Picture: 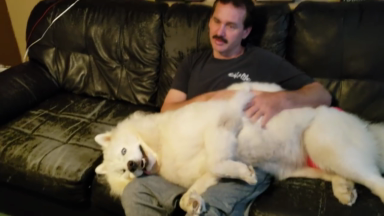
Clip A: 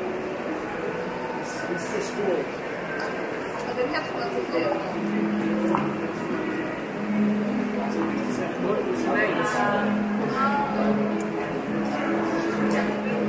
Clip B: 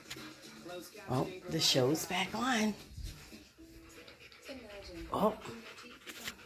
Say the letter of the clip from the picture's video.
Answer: B